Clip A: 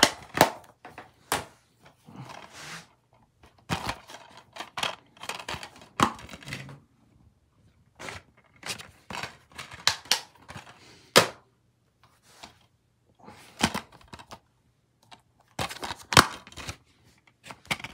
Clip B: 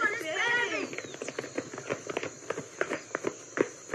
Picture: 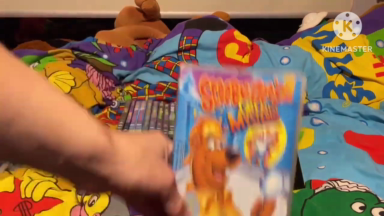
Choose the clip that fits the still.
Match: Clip A